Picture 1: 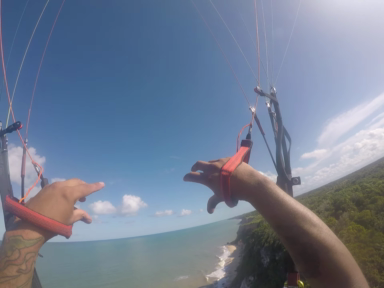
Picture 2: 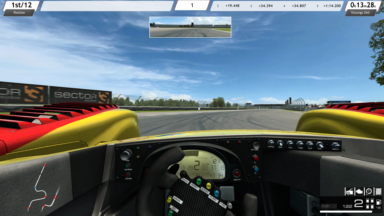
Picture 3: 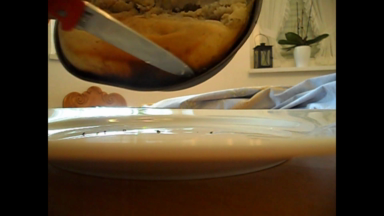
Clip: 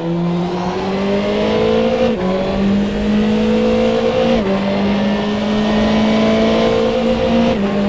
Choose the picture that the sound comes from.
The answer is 2